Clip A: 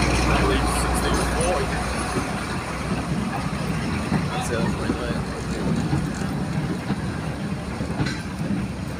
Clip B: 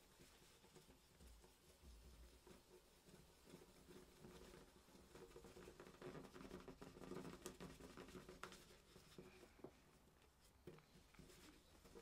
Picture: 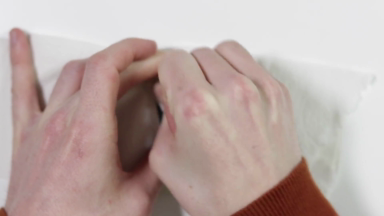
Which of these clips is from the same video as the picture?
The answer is B